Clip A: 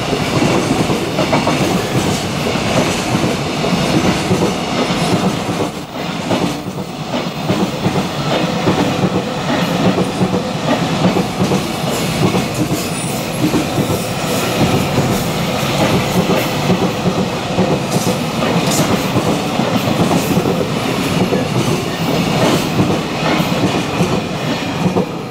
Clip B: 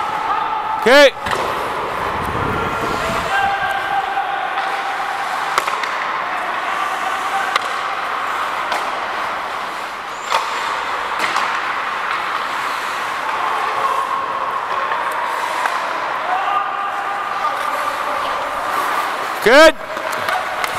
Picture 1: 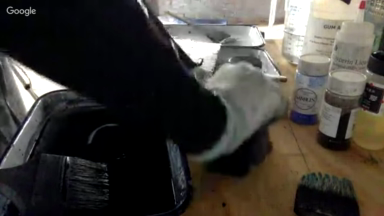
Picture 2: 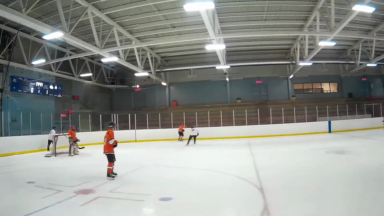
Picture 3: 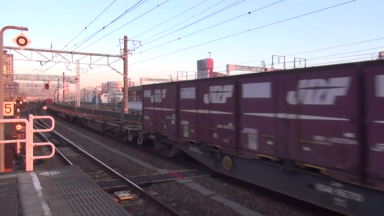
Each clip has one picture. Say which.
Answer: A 3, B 2